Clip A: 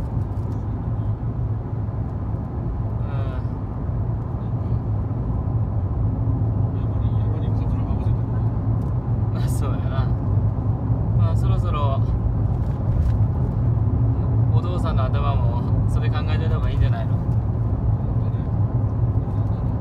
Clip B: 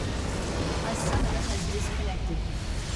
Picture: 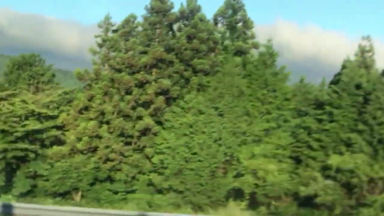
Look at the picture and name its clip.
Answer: A